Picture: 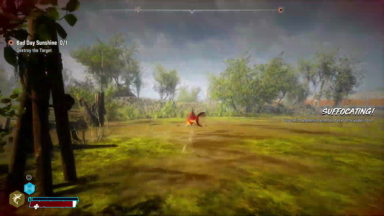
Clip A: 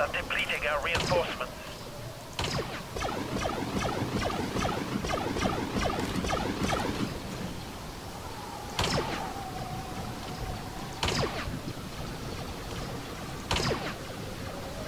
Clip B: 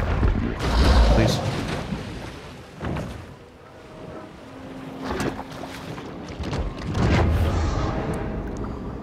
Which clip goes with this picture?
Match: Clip B